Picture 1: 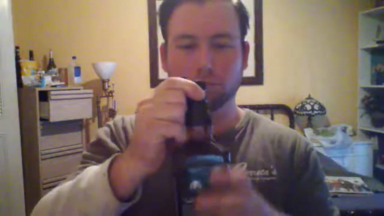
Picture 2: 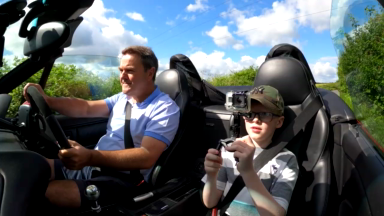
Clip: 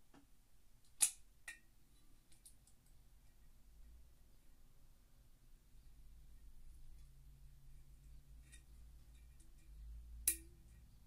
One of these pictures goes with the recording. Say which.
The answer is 1